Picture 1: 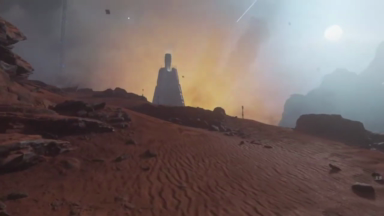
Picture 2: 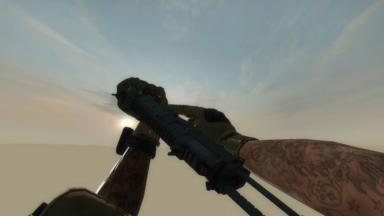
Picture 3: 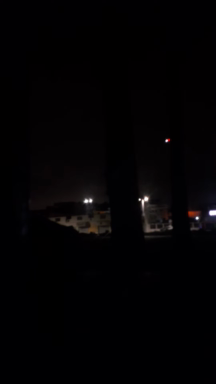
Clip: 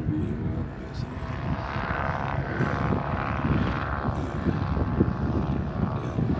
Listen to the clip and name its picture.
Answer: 3